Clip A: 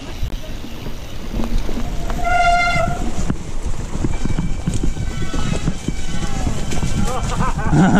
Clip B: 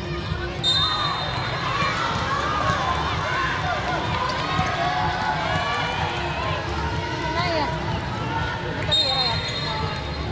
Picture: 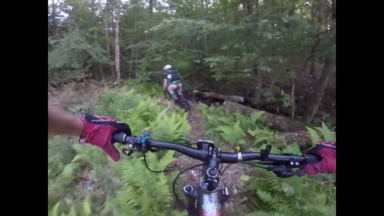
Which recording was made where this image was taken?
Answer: A